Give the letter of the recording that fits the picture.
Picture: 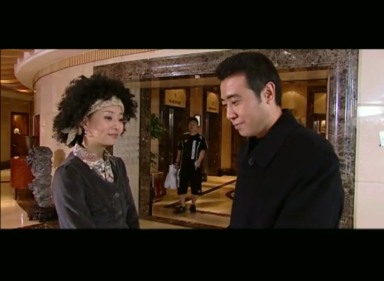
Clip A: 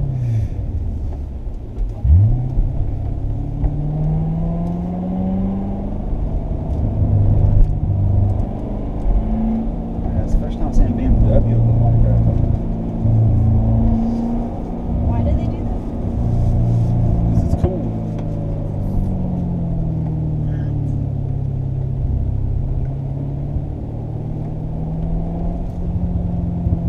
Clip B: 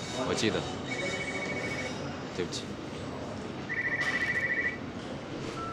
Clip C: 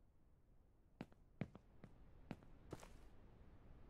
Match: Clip B